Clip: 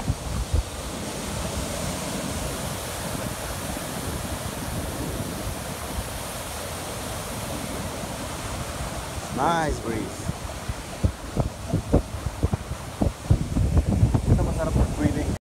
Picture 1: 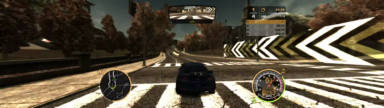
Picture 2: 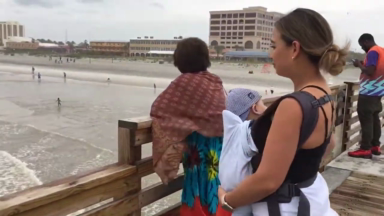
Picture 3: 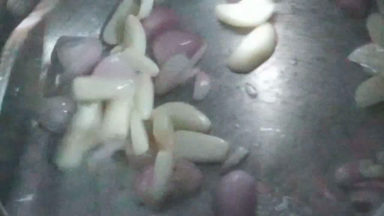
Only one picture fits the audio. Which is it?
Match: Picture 2